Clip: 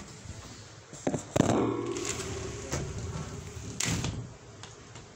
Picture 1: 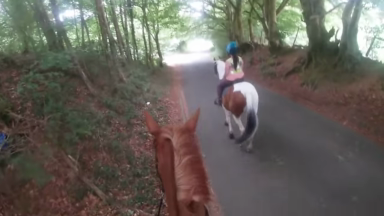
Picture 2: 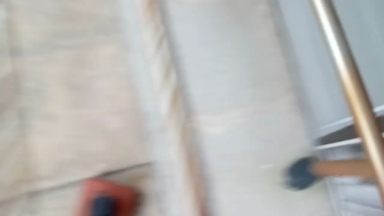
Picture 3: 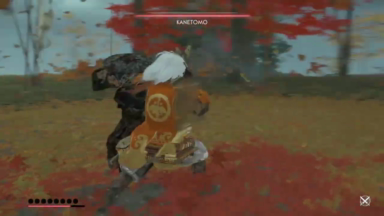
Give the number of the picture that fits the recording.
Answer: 2